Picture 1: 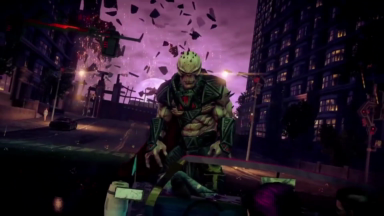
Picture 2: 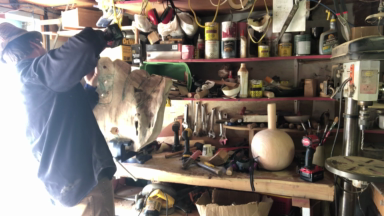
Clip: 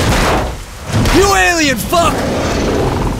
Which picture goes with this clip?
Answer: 1